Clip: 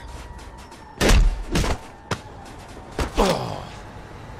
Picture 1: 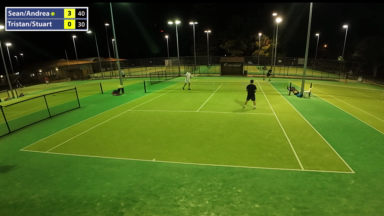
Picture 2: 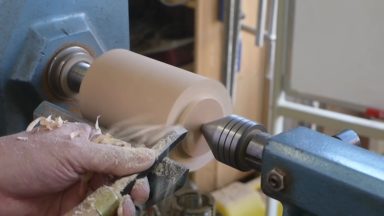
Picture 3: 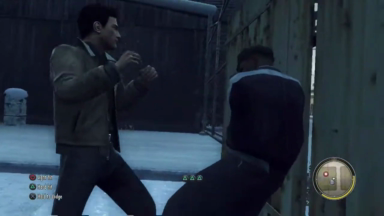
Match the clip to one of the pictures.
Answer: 3